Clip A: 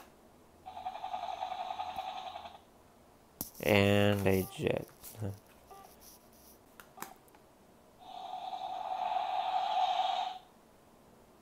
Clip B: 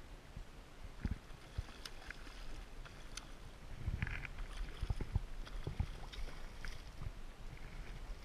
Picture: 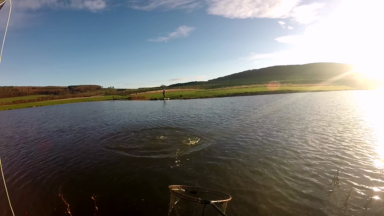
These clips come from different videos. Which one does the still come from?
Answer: B